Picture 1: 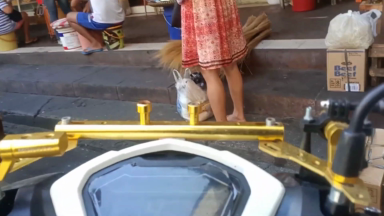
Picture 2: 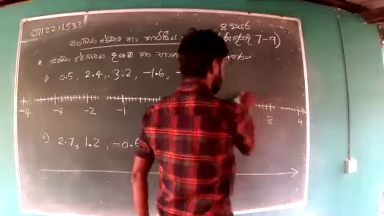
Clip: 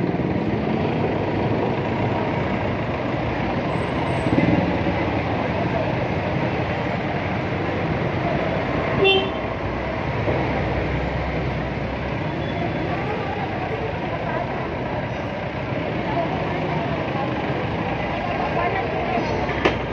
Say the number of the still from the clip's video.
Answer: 1